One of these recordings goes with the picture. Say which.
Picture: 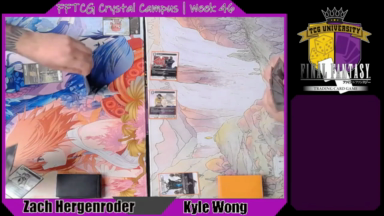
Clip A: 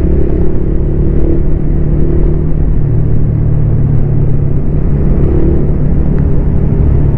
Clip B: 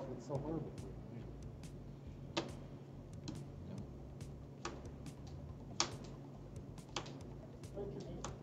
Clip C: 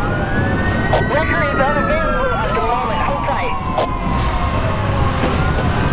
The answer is B